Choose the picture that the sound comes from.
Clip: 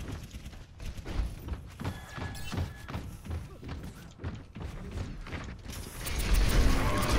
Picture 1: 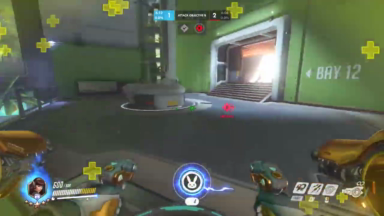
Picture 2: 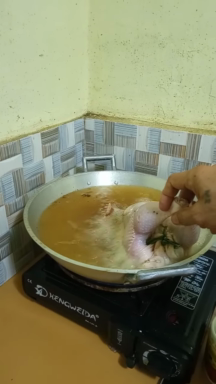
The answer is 1